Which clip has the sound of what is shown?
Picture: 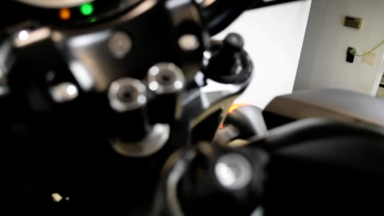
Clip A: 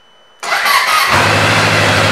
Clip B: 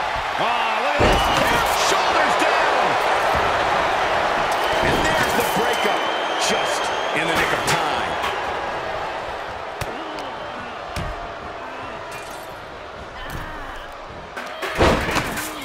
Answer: A